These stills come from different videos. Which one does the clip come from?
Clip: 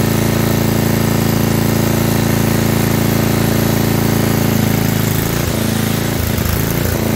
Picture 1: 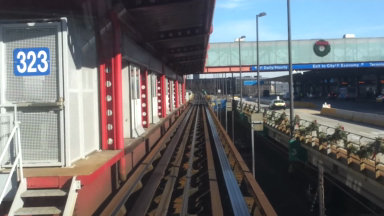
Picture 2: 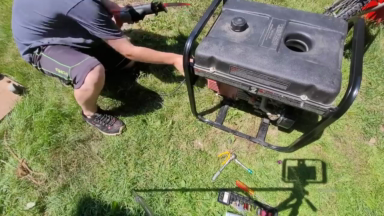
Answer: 2